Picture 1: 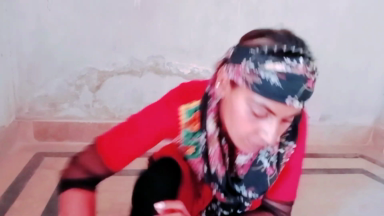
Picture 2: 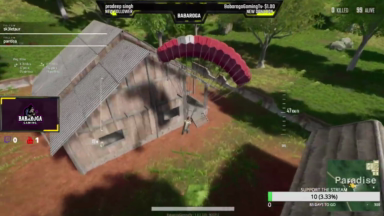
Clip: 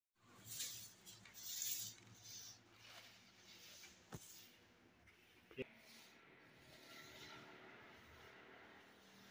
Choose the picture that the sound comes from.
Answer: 1